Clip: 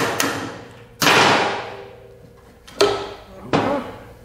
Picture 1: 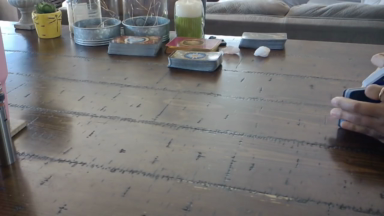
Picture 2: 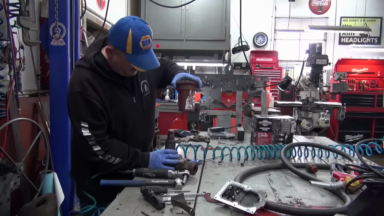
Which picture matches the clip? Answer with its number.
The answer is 2